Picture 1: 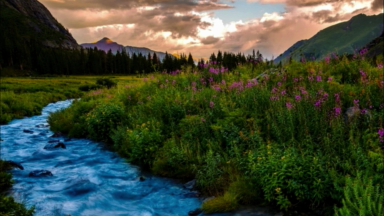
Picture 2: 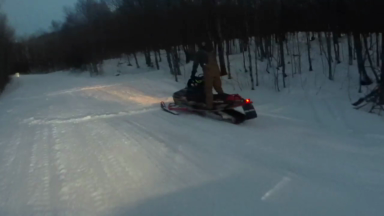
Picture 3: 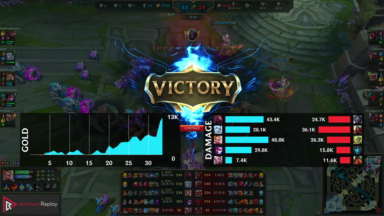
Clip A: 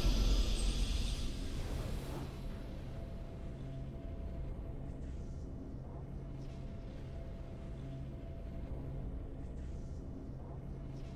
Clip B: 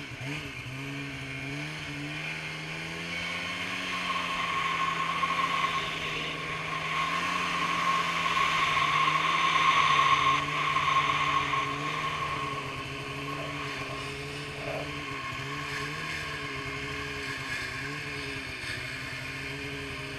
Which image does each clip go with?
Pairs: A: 3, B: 2